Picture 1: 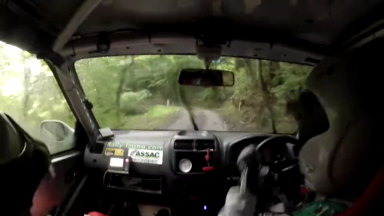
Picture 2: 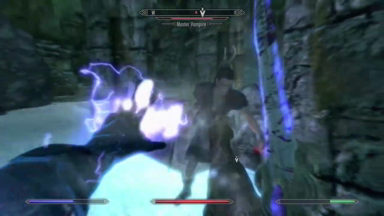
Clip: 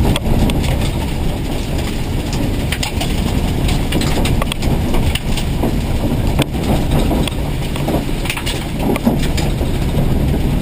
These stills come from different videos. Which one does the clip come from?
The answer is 1